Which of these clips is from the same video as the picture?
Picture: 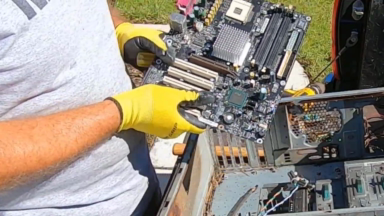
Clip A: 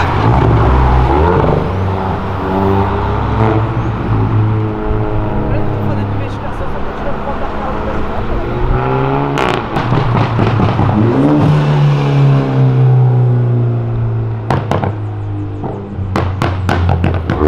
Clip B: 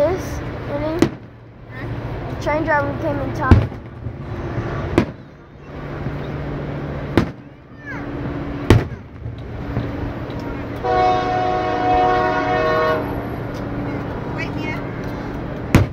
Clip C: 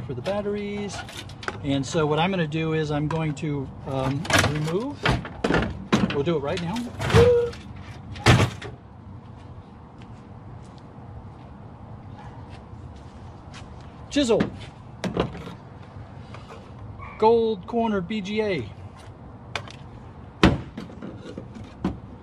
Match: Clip C